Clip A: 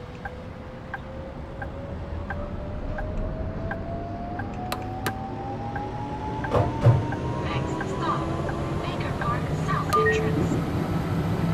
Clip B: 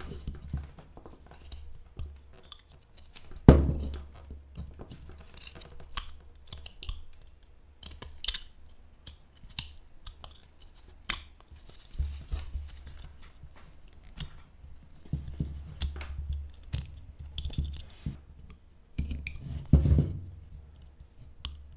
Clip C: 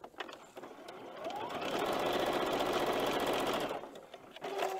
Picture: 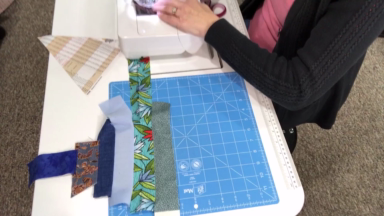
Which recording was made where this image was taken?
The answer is C